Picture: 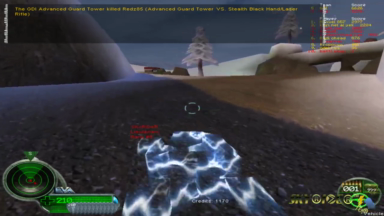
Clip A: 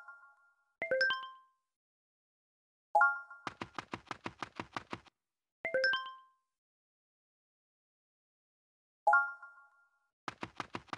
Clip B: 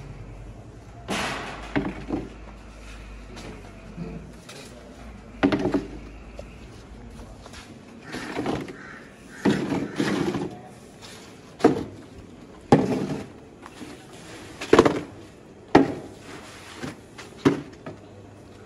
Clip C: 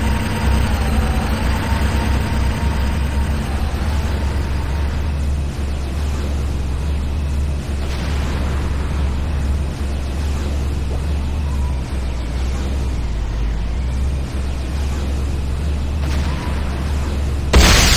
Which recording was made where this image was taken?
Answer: C